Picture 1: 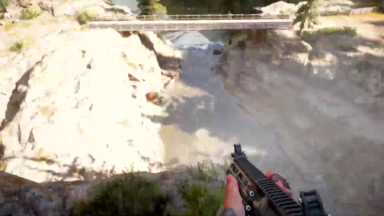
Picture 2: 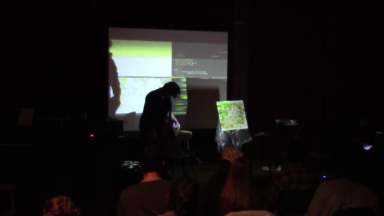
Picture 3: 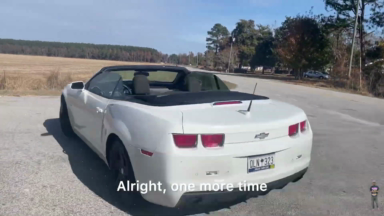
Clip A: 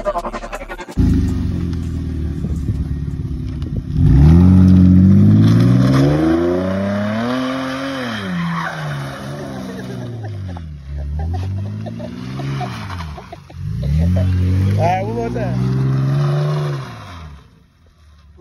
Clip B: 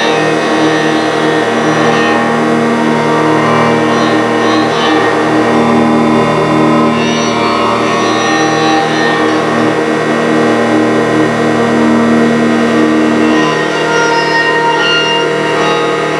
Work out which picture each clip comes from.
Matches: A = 3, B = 2